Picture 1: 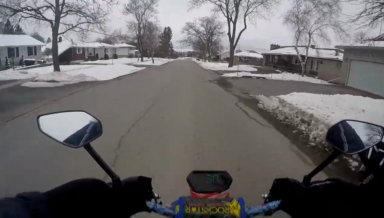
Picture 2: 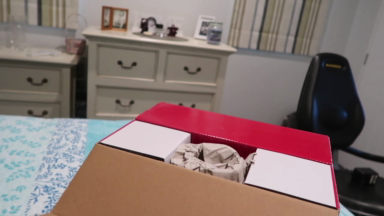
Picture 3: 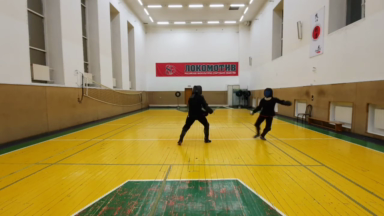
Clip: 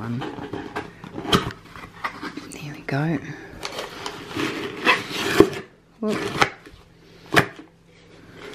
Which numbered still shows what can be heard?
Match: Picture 2